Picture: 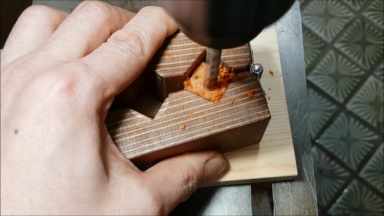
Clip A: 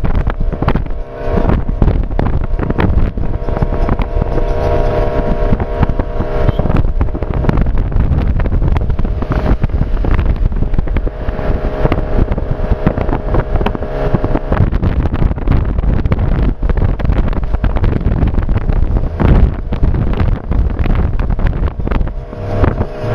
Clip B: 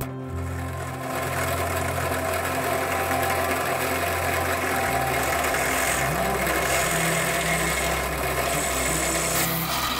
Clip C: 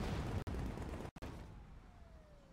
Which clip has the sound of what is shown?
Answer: B